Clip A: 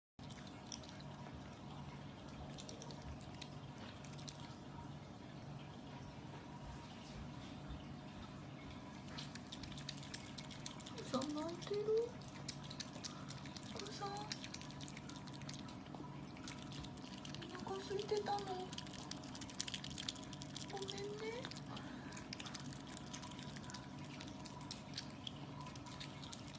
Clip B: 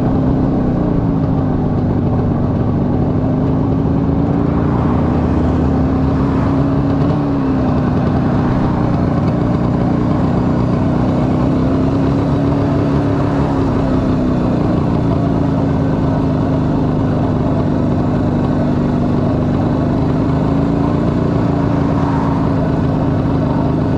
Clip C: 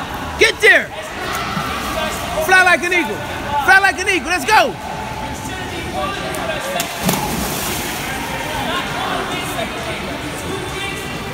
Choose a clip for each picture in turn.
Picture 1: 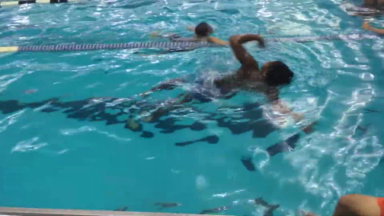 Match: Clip C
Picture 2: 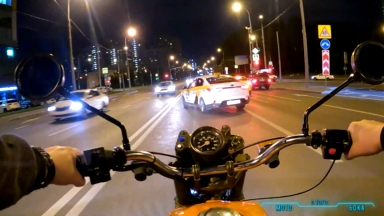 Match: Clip B